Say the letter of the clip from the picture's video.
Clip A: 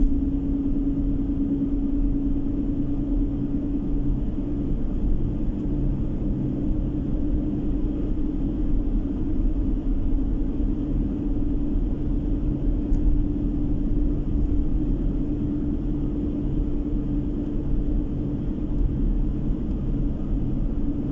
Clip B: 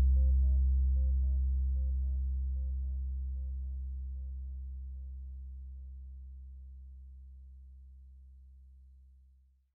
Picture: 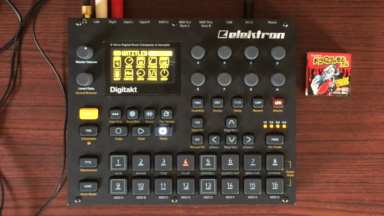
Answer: B